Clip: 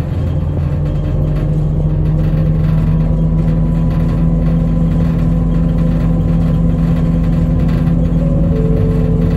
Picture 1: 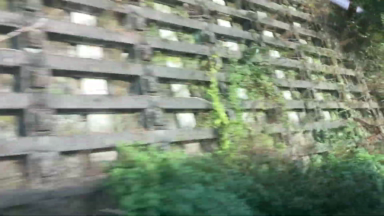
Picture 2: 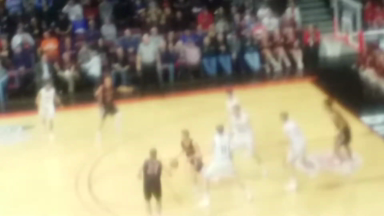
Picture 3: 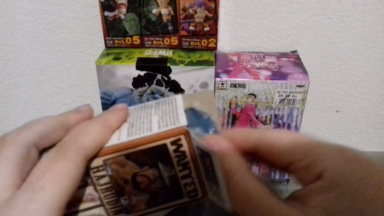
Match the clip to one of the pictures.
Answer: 1